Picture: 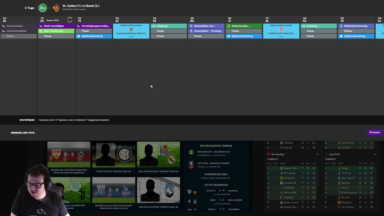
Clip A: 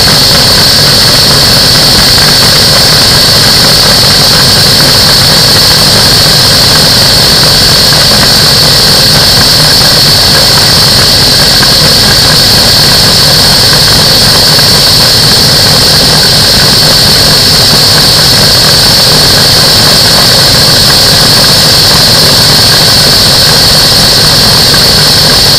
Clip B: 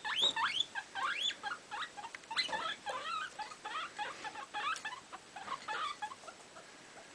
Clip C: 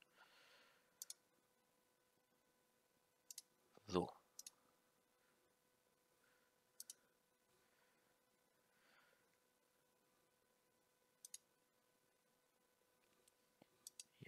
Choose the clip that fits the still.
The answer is C